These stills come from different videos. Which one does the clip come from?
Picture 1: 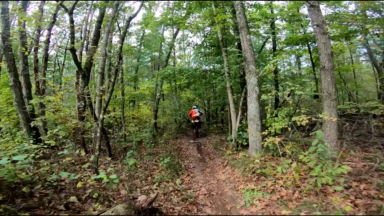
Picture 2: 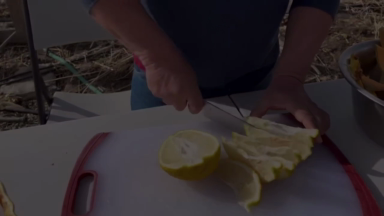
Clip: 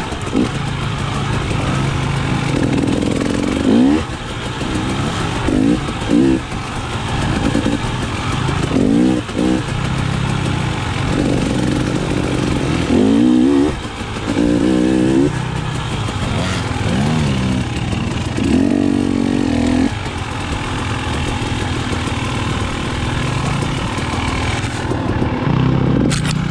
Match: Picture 1